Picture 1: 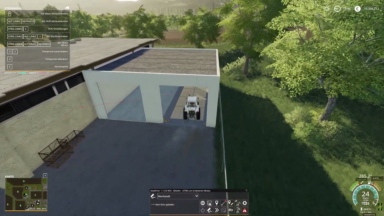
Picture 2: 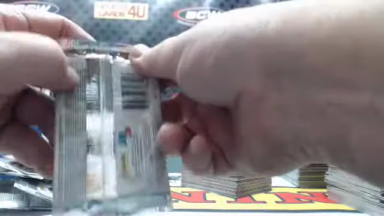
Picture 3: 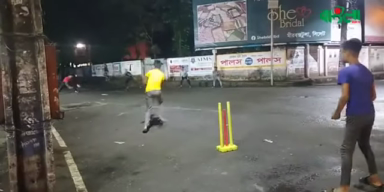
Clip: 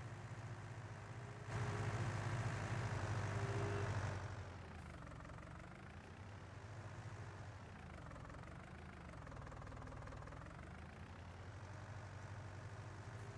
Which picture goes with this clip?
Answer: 1